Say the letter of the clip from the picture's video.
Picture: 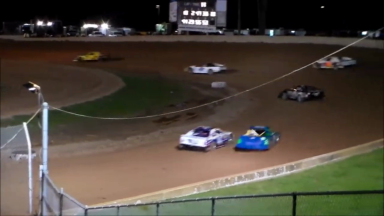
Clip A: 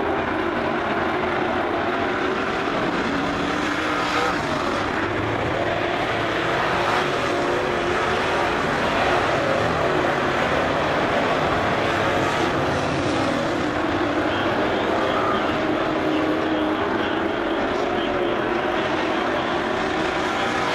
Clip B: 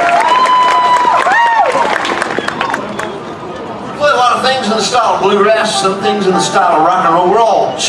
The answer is A